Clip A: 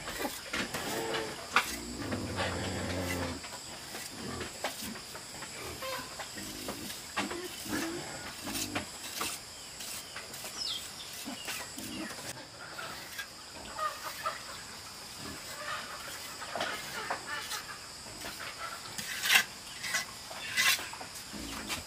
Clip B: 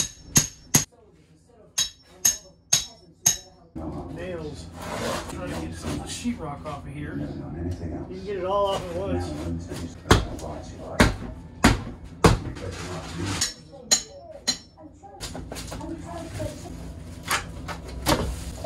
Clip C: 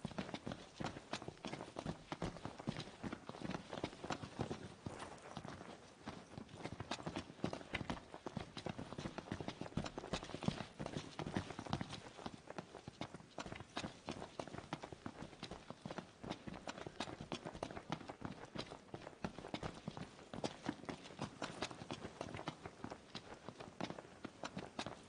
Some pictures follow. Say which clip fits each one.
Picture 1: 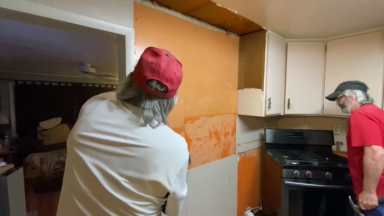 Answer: B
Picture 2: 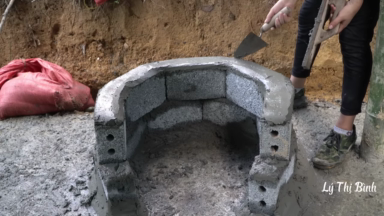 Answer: A